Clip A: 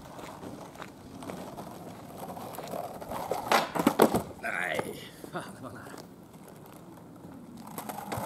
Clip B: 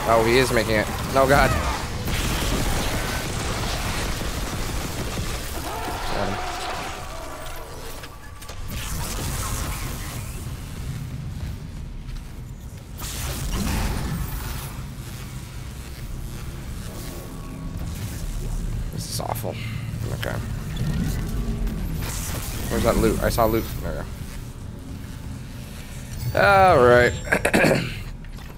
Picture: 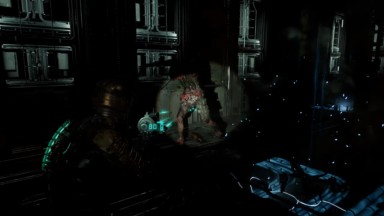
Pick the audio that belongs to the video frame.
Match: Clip B